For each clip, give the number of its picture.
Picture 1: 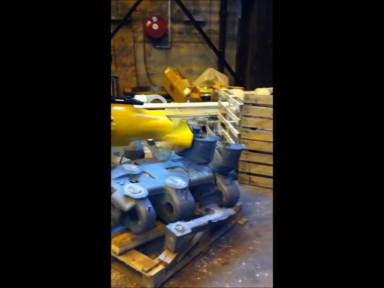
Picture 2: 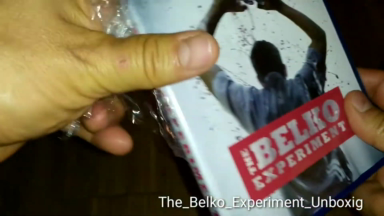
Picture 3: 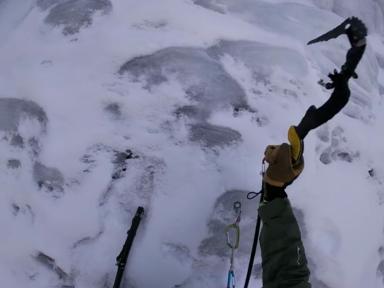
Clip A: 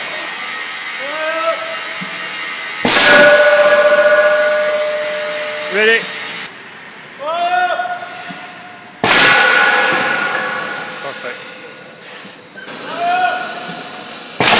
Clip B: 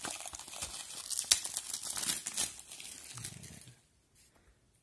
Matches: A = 1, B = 2